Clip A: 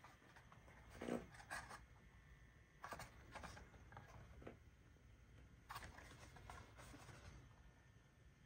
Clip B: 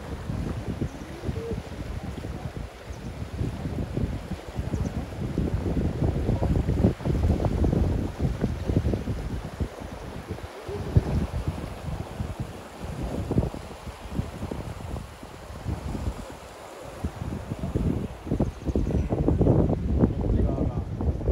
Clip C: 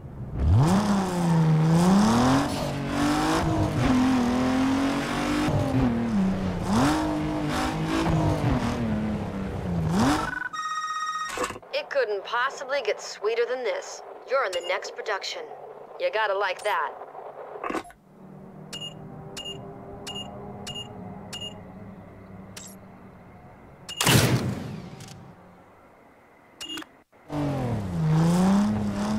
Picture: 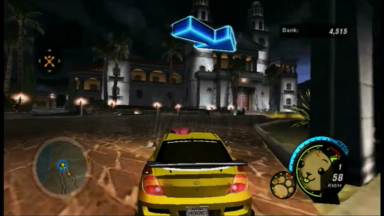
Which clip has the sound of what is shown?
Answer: C